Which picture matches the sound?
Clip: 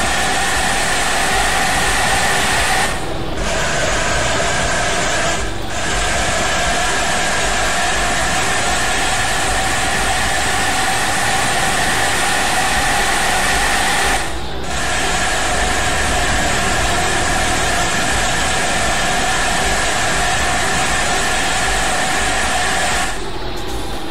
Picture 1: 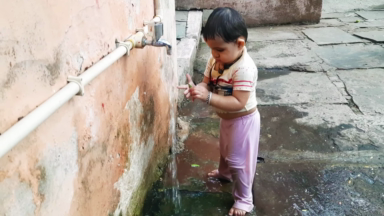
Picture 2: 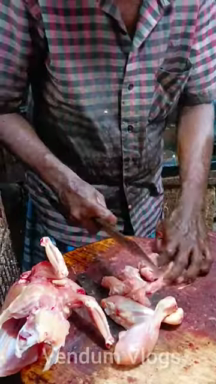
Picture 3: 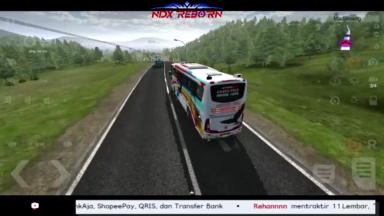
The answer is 3